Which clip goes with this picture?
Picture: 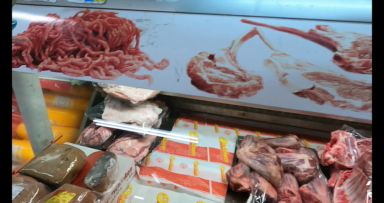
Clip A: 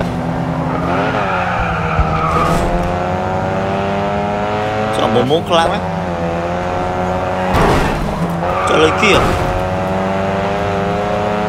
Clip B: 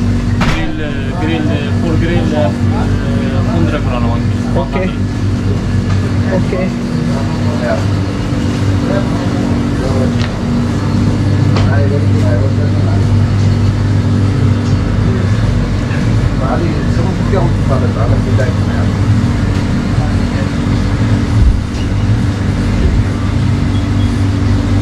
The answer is B